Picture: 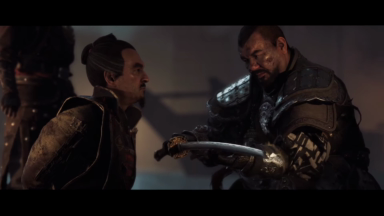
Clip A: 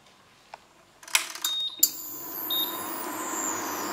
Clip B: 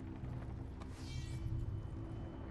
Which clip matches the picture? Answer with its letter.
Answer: B